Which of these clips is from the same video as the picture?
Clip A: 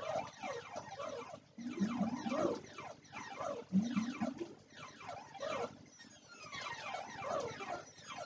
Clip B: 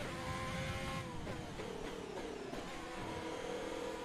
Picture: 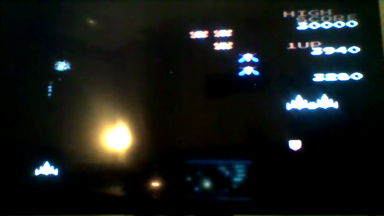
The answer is A